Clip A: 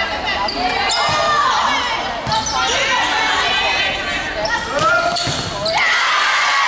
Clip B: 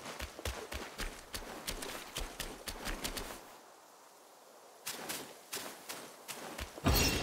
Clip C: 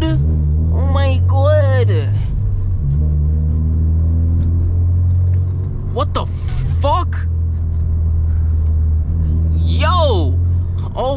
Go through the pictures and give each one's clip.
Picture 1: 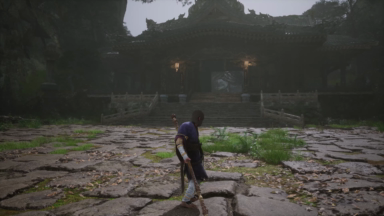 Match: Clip B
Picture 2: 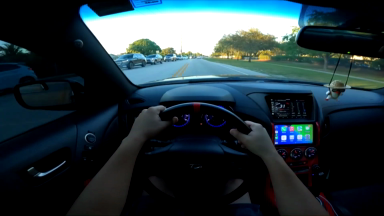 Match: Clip C